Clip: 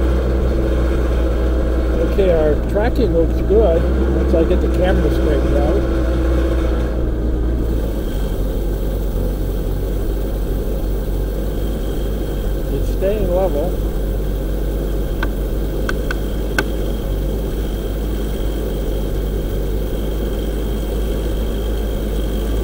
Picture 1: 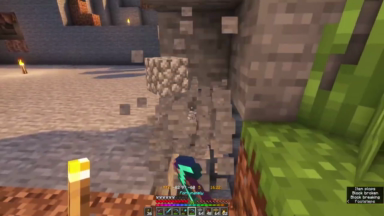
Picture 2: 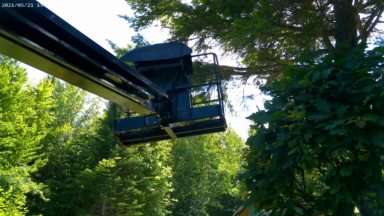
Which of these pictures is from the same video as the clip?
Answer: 2